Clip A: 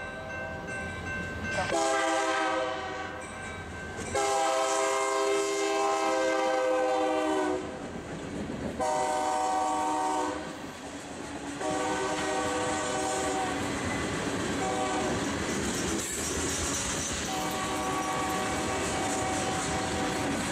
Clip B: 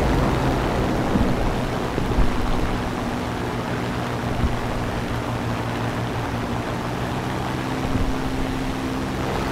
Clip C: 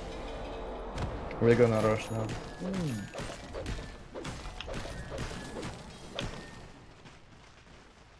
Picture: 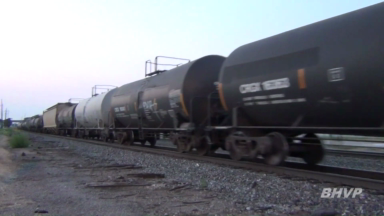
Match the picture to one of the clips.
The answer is A